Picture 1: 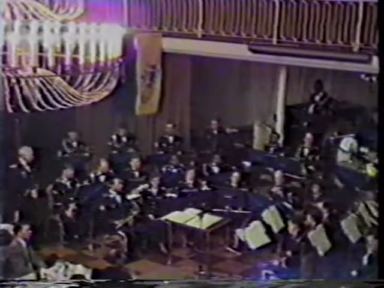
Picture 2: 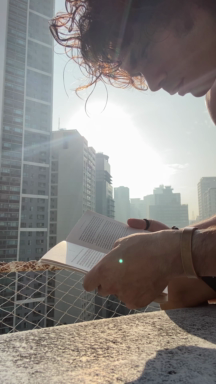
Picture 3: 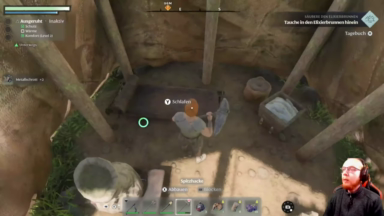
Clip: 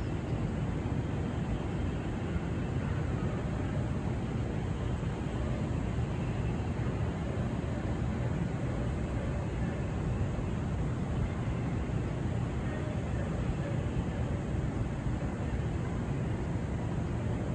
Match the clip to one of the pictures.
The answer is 2